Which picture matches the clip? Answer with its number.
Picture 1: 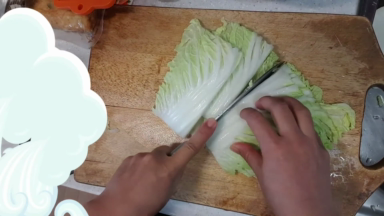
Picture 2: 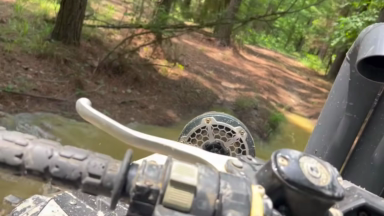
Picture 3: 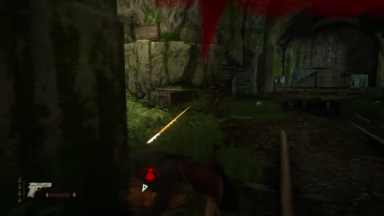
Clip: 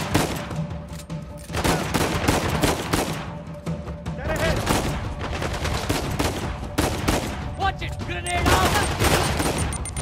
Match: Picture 3